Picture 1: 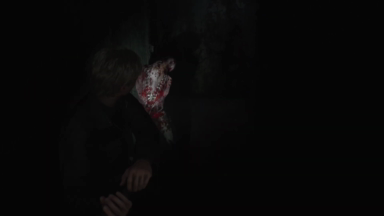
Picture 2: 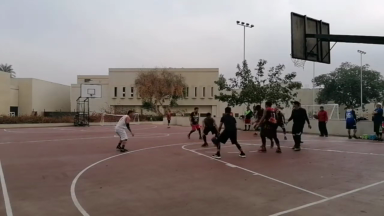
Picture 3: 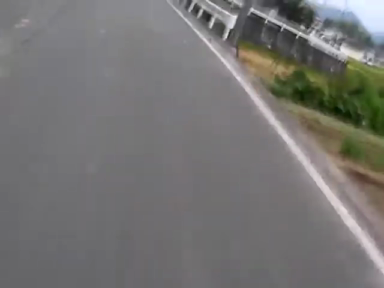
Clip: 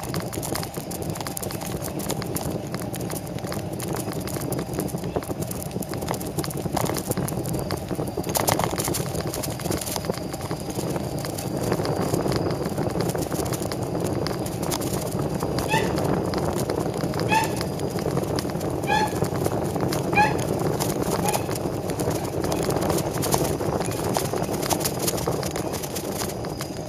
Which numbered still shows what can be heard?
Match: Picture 3